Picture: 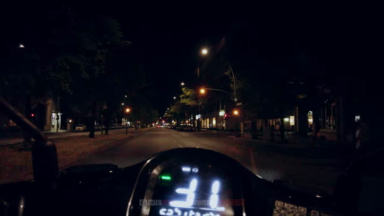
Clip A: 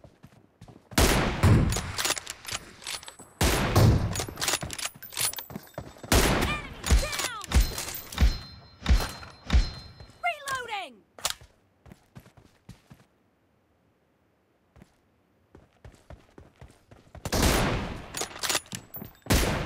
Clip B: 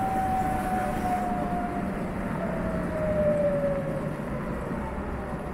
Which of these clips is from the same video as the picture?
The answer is B